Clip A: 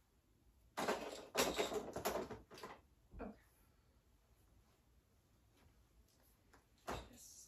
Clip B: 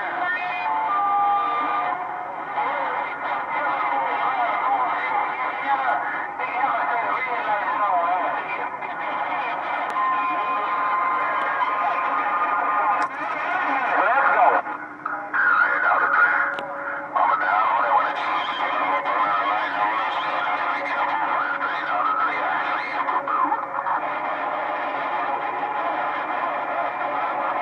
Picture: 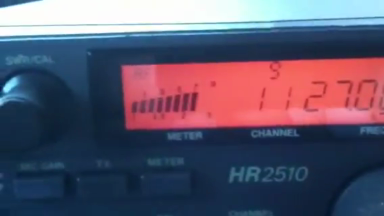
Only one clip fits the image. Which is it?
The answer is B